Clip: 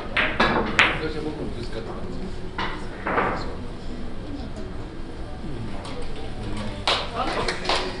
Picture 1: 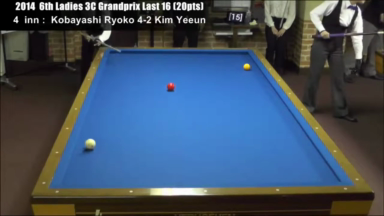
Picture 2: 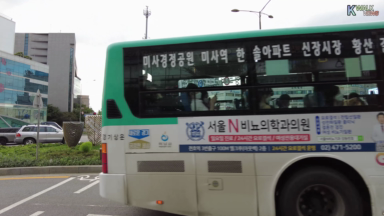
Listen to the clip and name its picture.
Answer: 1